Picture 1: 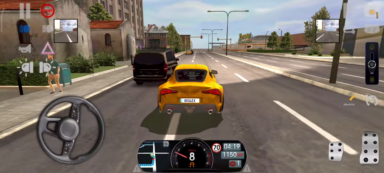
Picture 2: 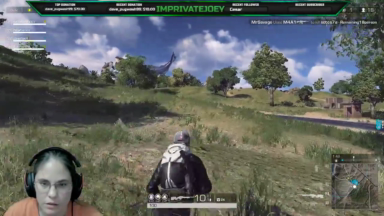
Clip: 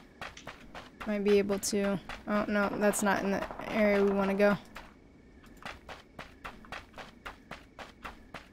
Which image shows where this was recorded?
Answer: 2